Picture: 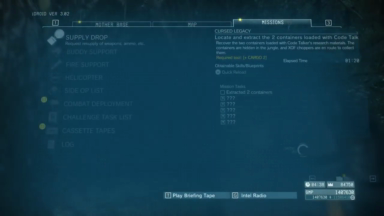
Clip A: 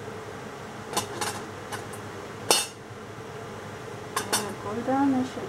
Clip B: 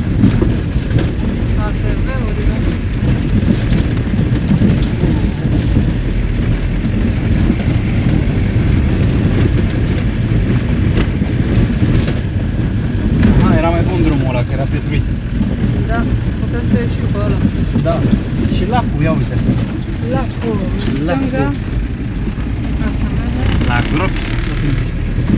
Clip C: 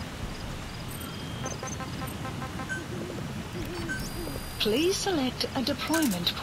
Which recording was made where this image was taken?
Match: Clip C